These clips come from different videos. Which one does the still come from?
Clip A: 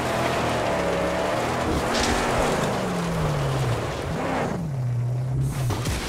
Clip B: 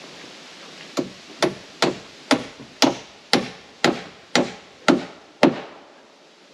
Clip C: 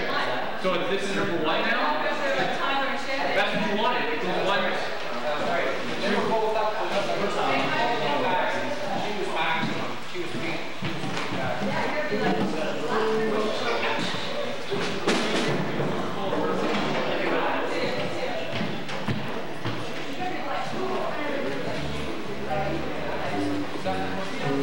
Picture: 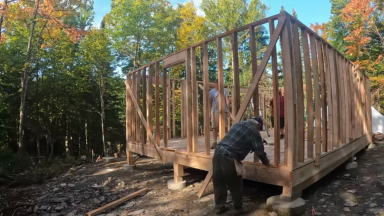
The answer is B